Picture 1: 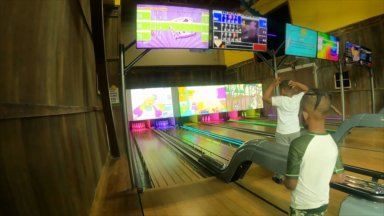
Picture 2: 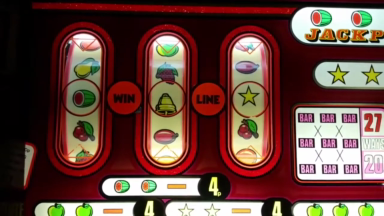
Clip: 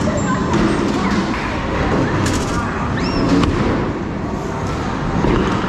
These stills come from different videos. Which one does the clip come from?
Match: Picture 1